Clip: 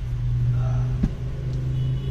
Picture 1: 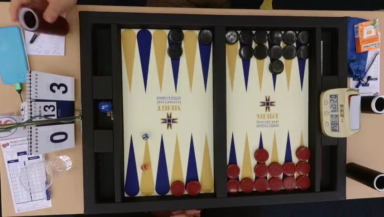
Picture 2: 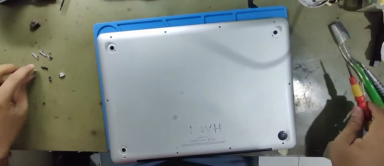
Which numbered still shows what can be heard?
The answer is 2